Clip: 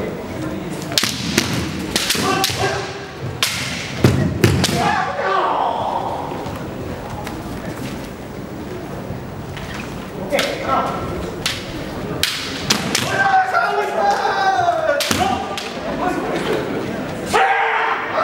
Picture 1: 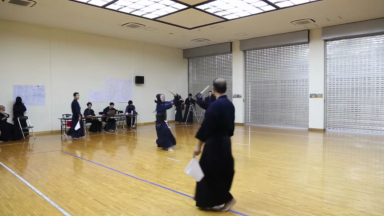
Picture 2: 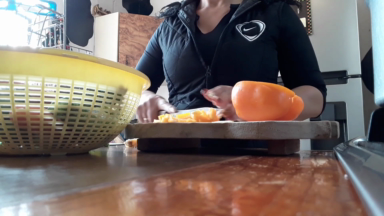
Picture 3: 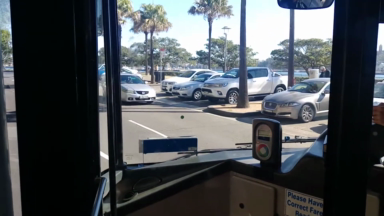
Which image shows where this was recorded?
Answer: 1